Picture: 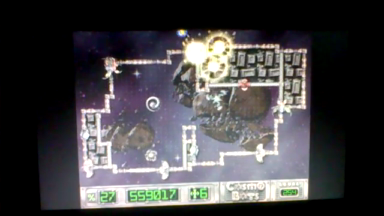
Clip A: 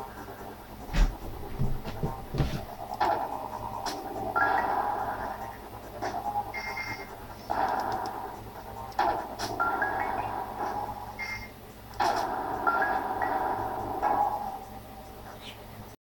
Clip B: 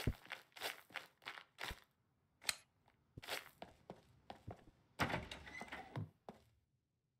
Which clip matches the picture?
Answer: A